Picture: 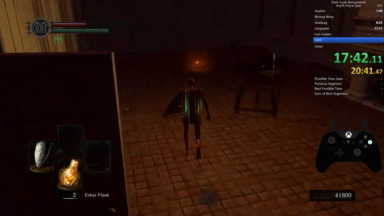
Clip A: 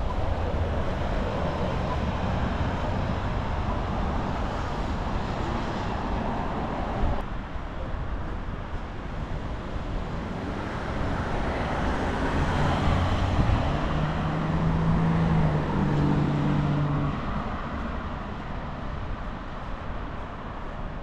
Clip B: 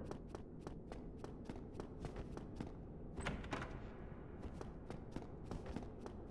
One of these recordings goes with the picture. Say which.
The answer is B